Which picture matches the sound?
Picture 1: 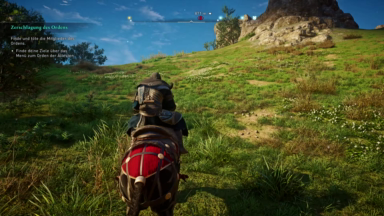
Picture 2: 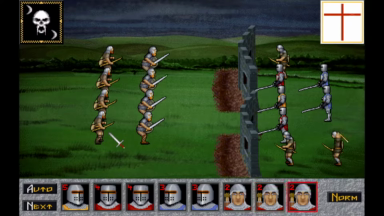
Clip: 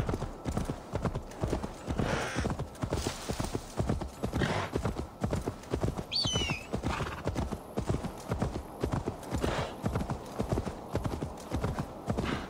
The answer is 1